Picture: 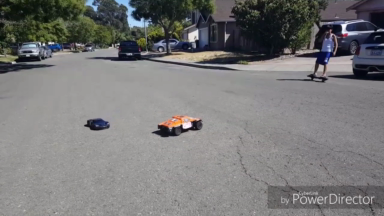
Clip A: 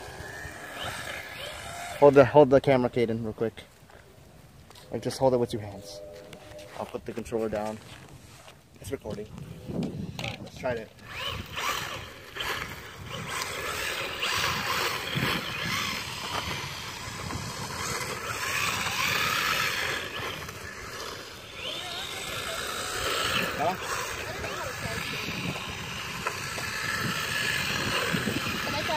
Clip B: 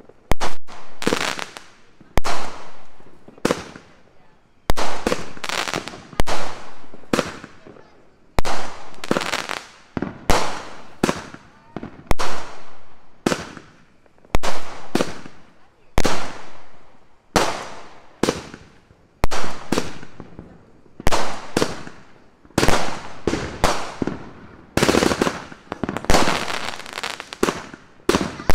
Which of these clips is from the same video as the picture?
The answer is A